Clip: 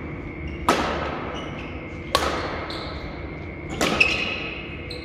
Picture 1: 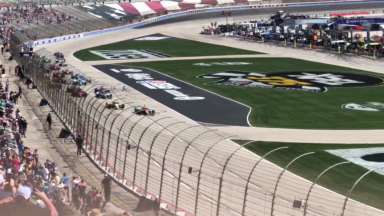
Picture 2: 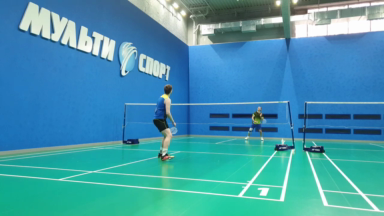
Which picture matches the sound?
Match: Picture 2